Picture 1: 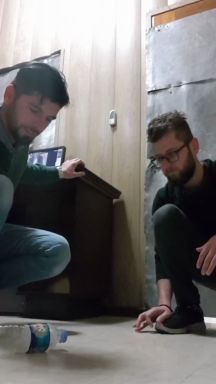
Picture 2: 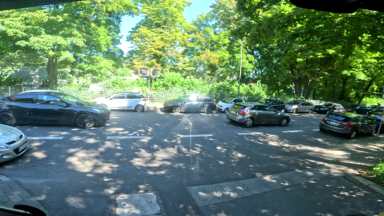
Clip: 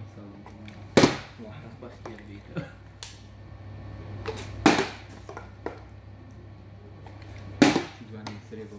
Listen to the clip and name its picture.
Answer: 1